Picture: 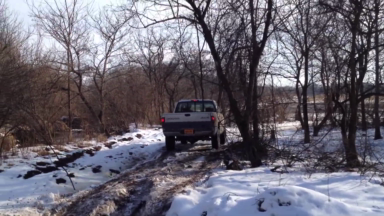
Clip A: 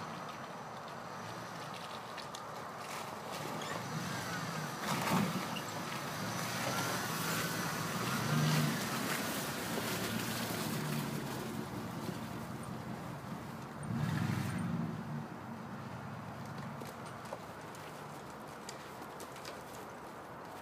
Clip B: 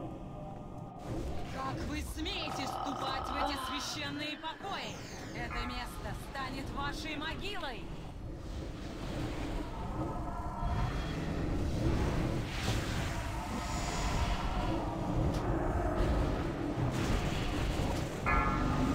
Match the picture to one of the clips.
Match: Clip A